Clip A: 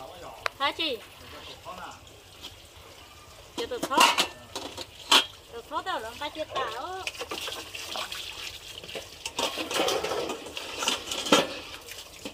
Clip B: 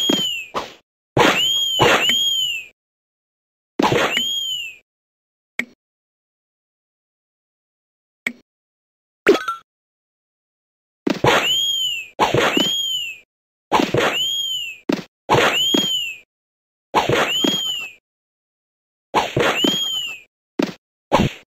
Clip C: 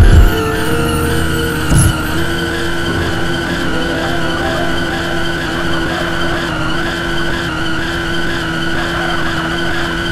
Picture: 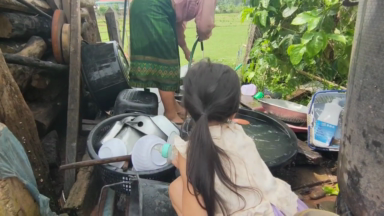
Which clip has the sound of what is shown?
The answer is A